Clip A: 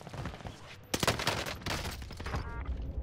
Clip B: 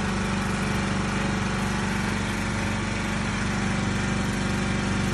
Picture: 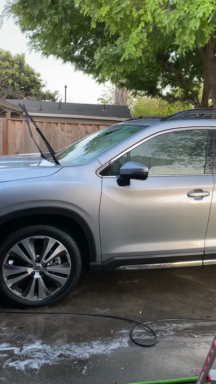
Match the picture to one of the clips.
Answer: B